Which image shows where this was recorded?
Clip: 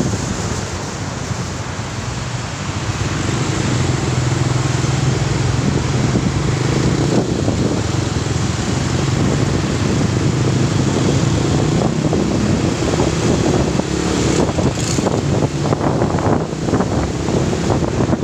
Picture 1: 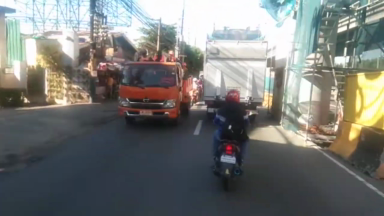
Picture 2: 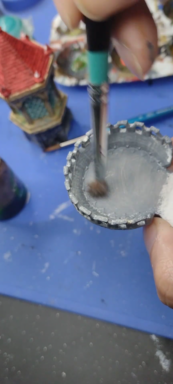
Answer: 1